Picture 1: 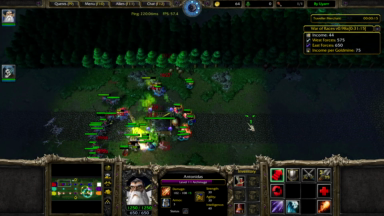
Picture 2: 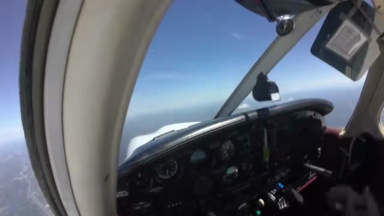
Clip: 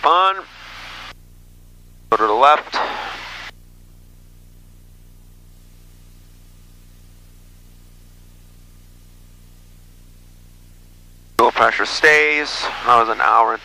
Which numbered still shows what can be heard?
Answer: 2